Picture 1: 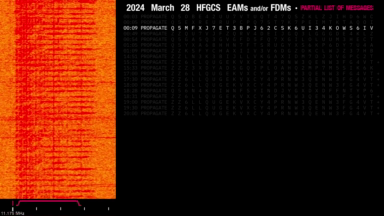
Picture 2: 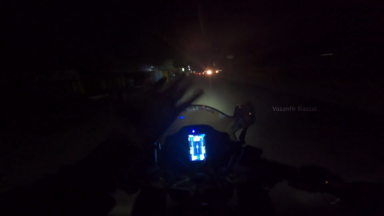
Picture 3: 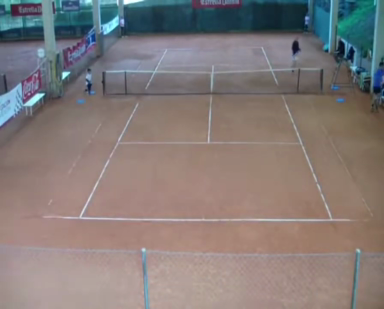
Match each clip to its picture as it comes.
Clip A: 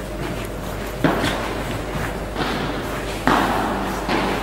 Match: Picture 3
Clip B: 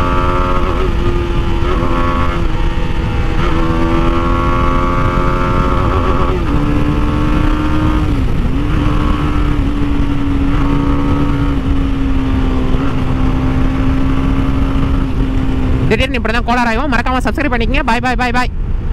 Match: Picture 2